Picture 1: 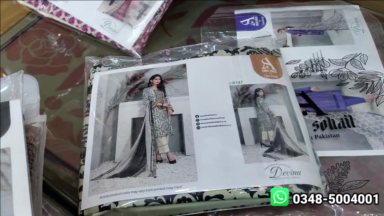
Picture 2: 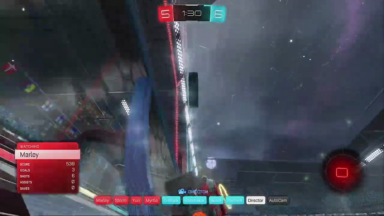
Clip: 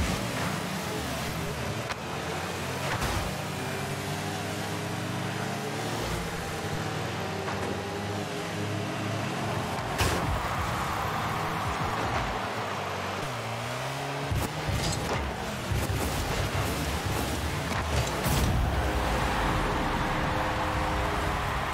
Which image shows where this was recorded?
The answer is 2